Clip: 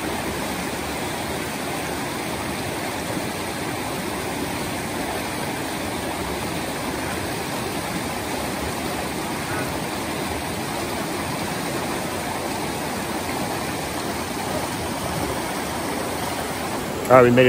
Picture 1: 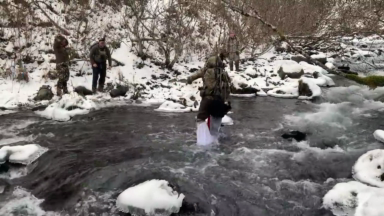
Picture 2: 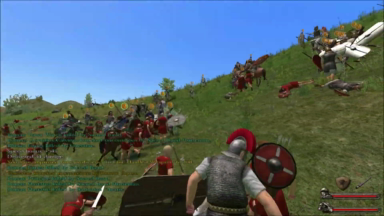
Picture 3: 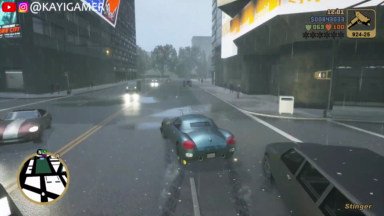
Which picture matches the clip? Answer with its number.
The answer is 1